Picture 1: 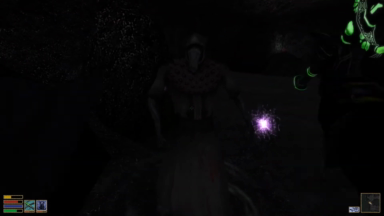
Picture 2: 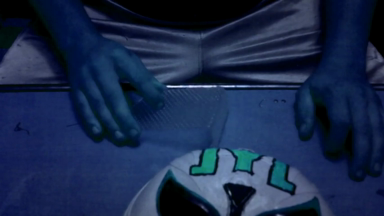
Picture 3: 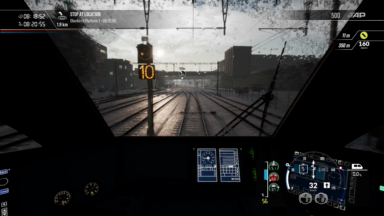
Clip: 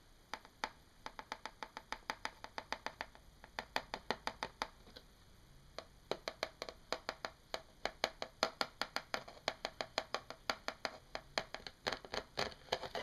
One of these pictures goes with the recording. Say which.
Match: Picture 2